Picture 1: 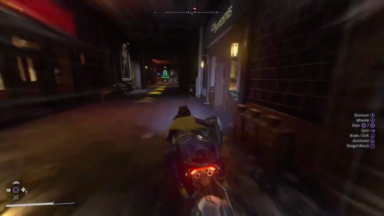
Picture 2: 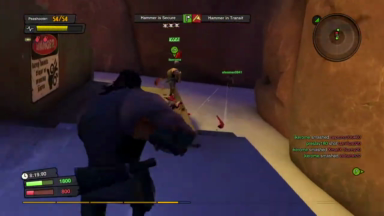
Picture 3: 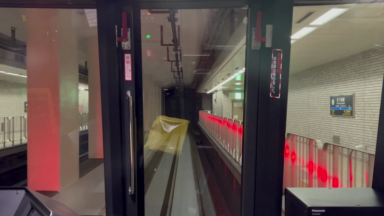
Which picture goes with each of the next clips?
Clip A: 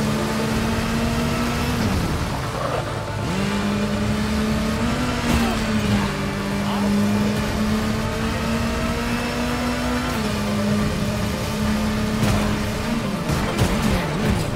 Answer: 1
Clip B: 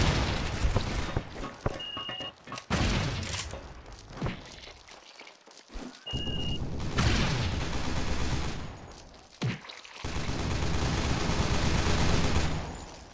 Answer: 2